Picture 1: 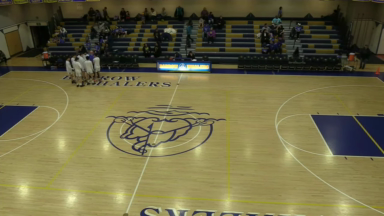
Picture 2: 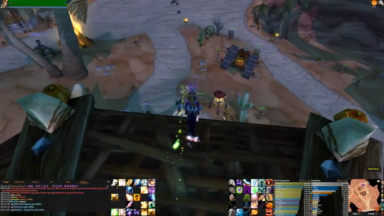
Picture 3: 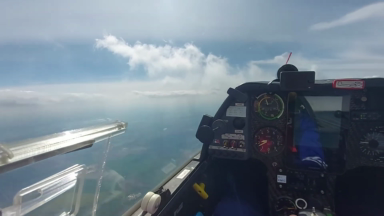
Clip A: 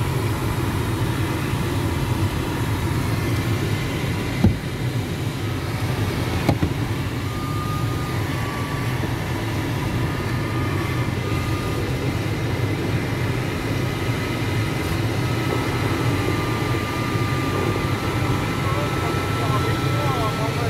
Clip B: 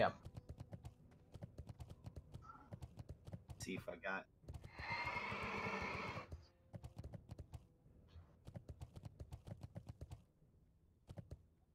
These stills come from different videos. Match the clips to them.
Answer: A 3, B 2